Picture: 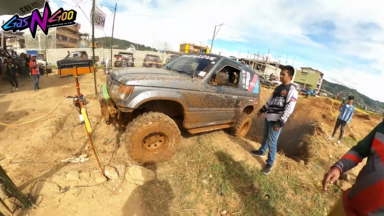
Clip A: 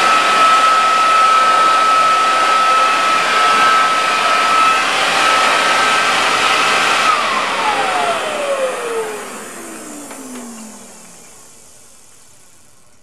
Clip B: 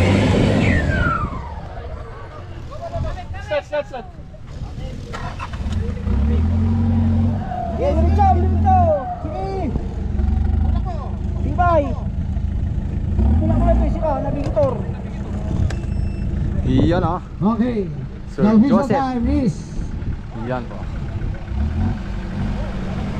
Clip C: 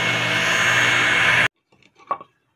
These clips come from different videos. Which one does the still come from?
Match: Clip B